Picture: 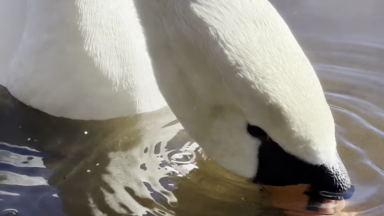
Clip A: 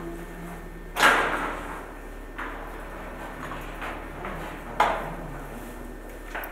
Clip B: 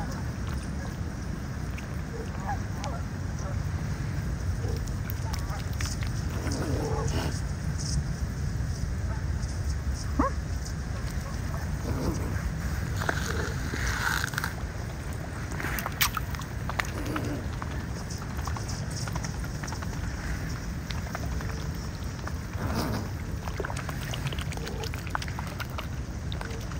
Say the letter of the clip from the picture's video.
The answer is B